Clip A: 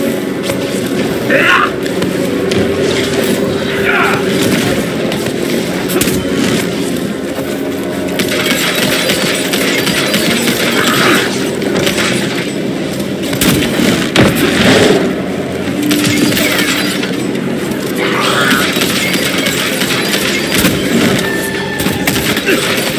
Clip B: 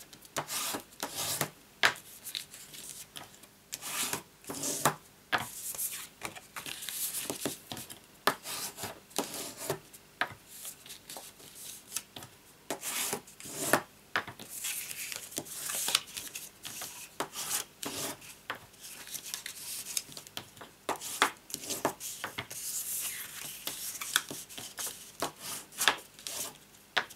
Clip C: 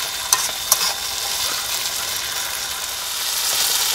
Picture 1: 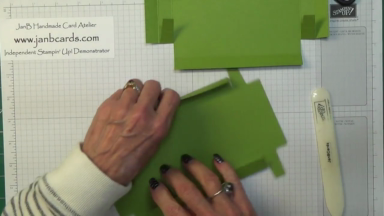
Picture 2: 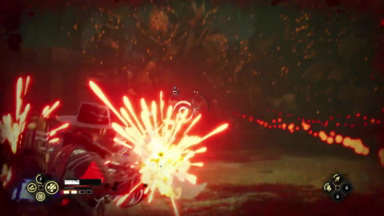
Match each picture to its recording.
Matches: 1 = B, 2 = A